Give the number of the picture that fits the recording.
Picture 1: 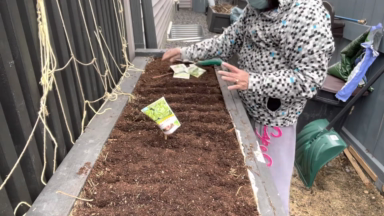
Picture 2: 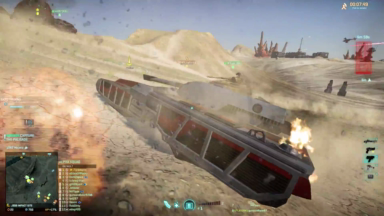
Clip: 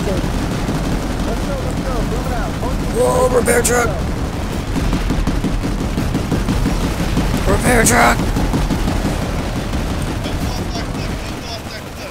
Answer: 2